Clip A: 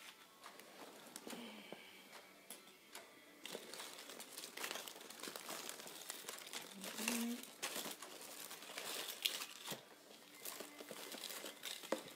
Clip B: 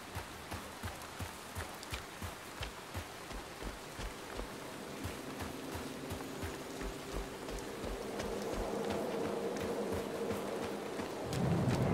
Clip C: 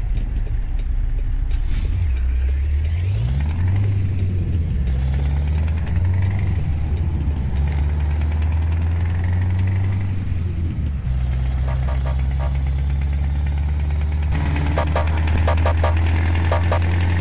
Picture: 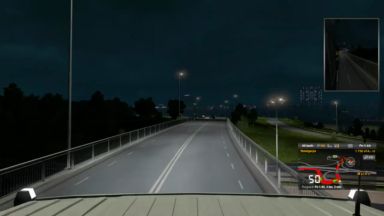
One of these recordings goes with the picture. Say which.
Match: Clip C